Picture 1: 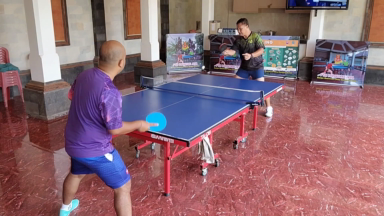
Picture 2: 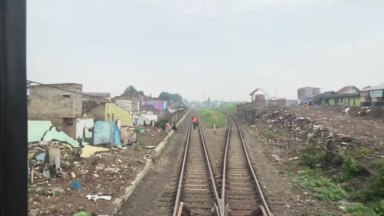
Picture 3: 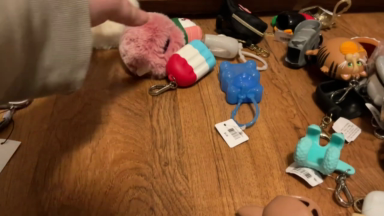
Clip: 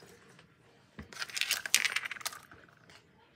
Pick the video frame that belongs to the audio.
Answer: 3